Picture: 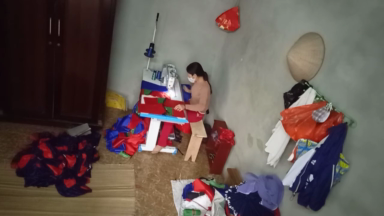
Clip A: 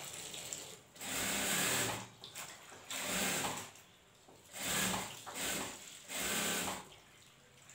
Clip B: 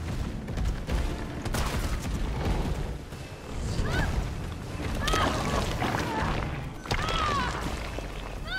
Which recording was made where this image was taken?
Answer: A